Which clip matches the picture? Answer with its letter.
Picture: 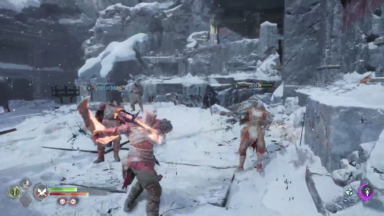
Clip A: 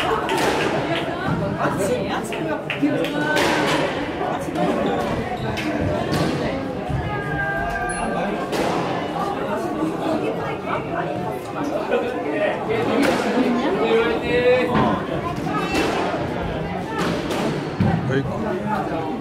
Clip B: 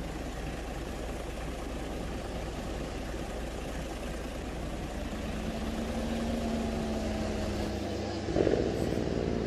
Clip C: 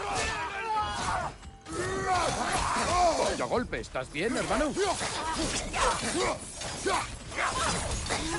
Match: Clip C